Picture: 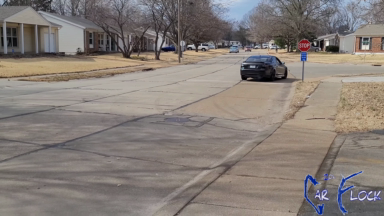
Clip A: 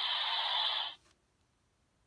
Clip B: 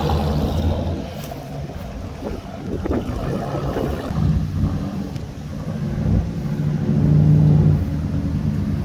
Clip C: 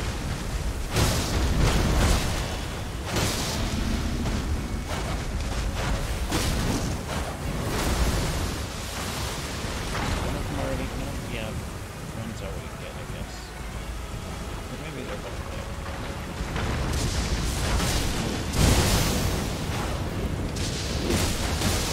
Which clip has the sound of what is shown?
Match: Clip B